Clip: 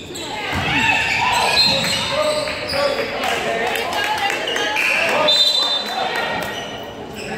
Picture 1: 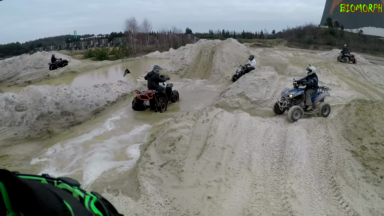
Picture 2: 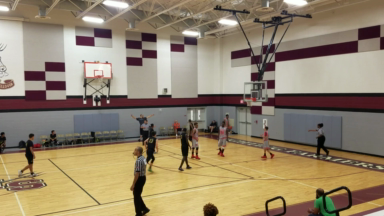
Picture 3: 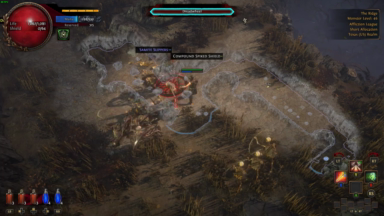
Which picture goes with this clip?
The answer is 2